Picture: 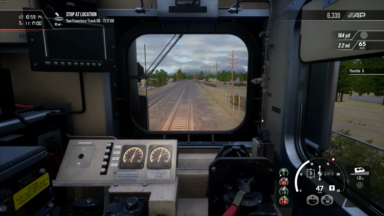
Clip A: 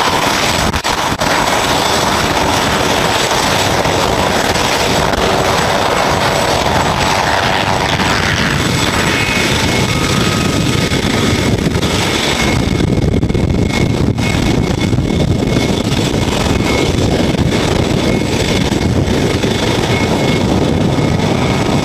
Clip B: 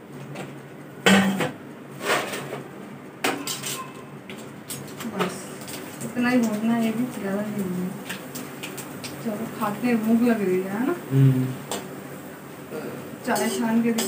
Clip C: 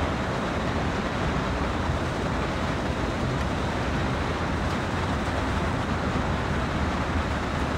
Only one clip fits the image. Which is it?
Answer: C